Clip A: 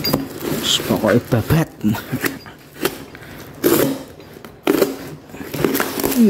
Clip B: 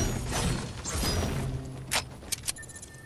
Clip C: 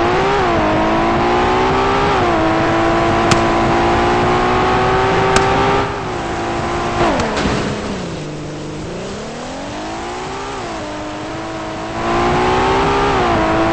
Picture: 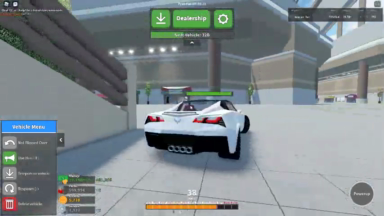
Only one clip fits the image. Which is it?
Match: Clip C